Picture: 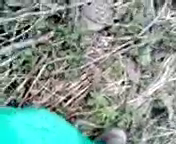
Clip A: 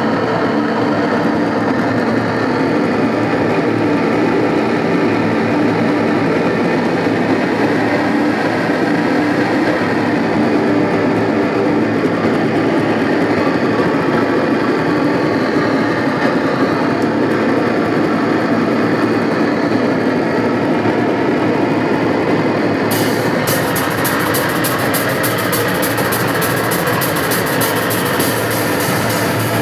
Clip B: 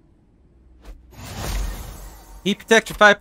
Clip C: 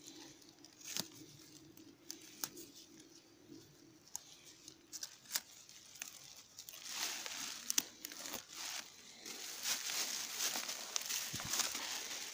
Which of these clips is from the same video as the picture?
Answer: C